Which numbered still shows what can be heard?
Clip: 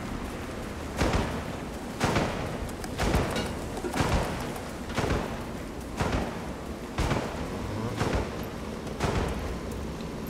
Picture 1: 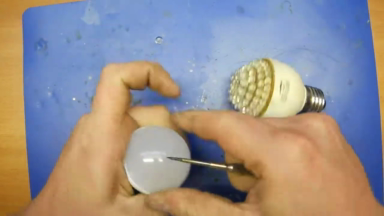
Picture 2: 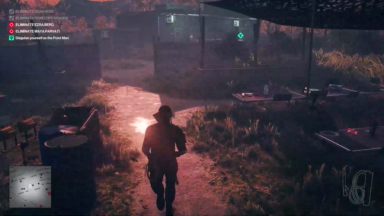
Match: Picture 2